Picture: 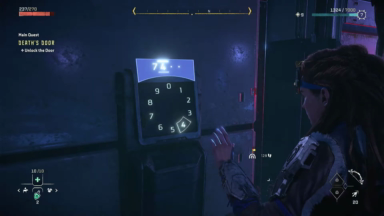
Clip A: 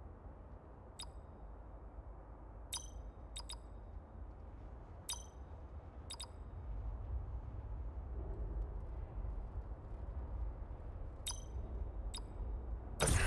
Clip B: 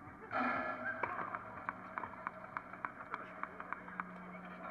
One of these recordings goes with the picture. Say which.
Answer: A